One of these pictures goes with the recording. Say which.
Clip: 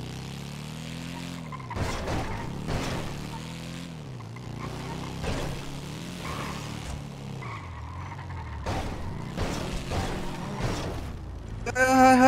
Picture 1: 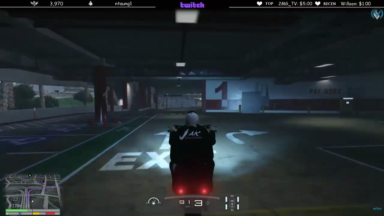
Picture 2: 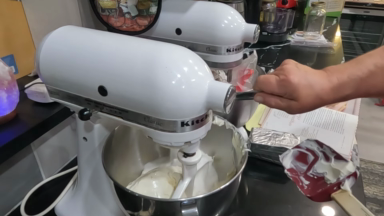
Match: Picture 1